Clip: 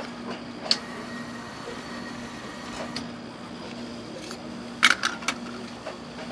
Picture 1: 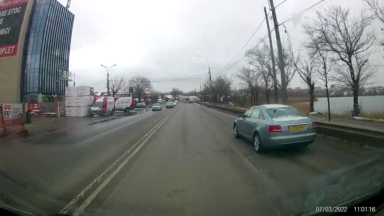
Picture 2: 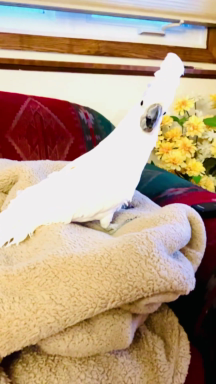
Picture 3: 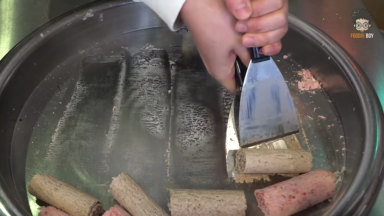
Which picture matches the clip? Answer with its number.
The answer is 3